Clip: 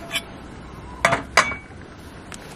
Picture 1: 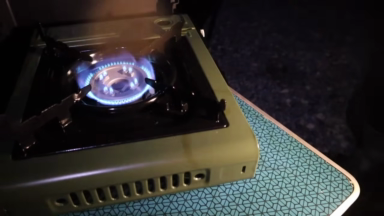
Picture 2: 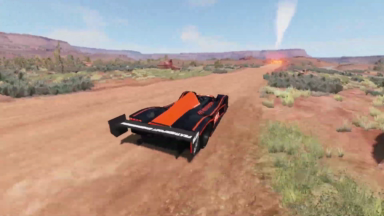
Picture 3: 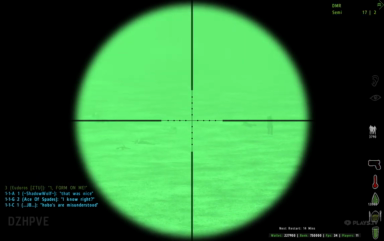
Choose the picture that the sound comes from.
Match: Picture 1